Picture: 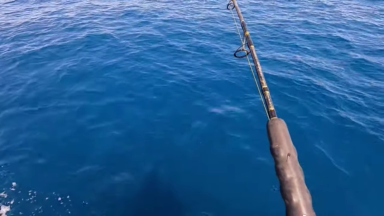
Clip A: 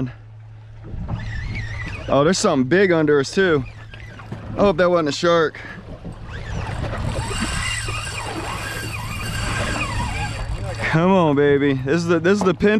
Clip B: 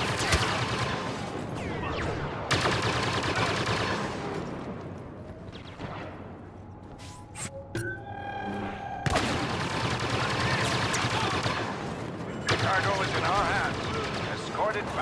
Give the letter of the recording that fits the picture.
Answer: A